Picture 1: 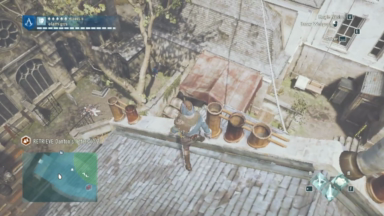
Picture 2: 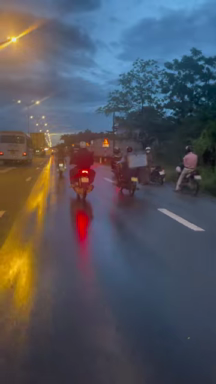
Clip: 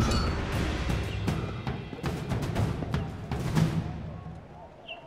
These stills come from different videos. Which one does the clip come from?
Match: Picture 1